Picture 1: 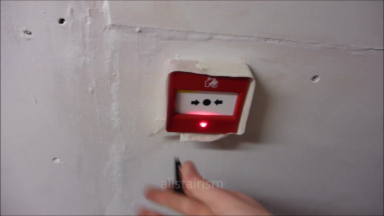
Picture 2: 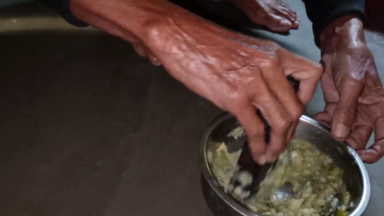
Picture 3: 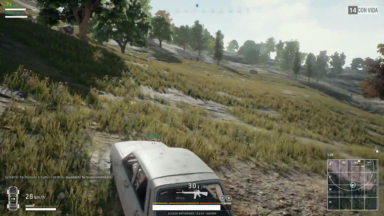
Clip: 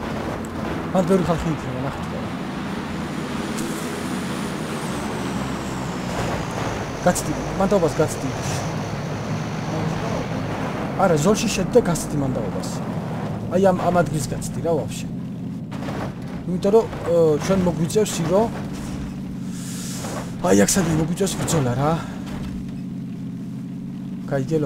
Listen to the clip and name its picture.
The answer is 3